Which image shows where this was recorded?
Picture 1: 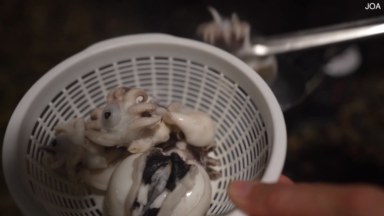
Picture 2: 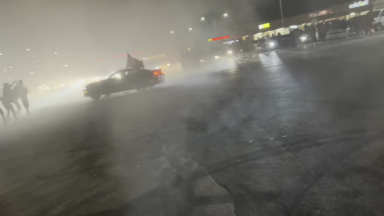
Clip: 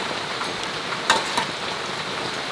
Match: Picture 1